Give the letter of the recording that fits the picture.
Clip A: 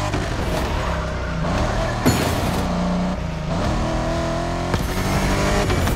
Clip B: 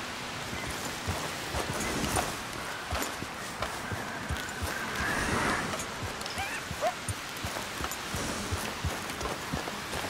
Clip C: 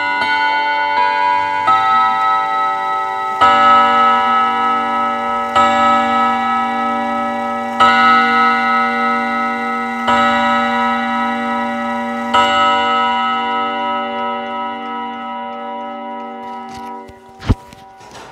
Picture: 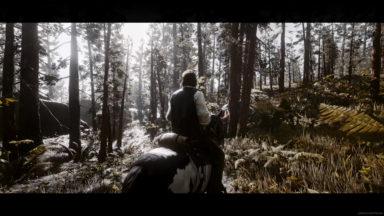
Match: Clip B